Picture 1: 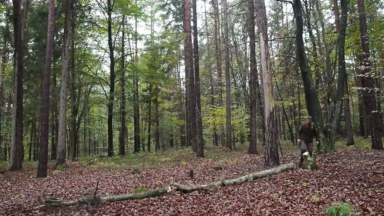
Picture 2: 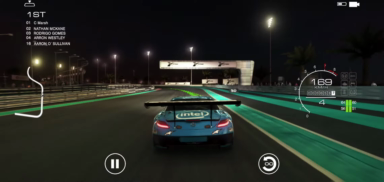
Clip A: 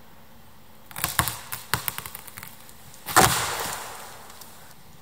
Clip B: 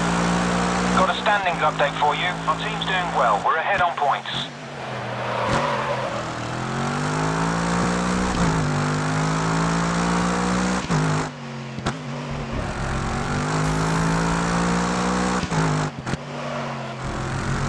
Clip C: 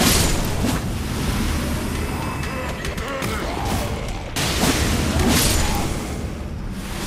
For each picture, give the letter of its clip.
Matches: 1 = A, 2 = B